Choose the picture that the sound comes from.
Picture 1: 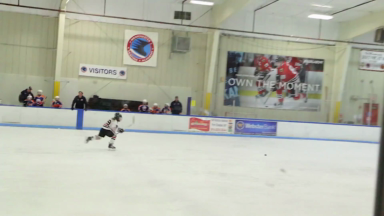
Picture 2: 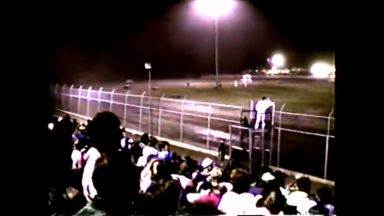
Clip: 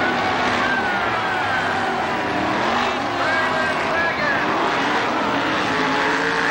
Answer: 2